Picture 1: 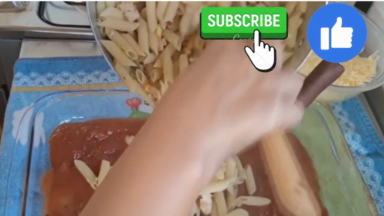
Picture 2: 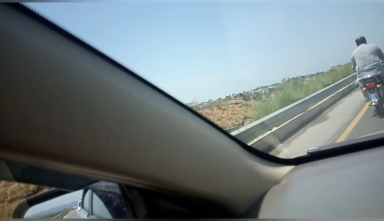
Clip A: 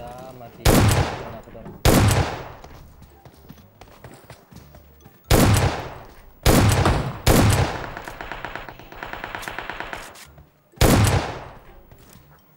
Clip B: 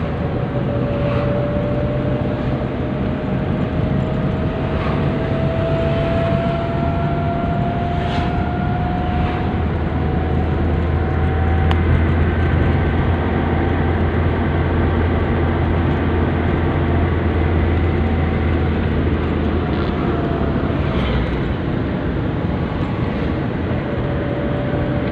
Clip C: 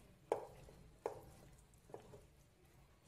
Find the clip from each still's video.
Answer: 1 C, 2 B